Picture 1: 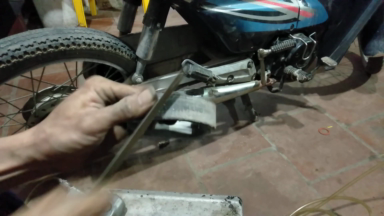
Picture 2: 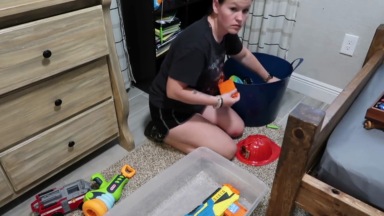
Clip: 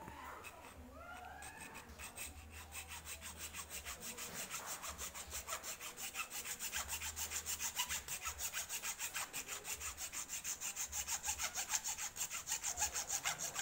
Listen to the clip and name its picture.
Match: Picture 1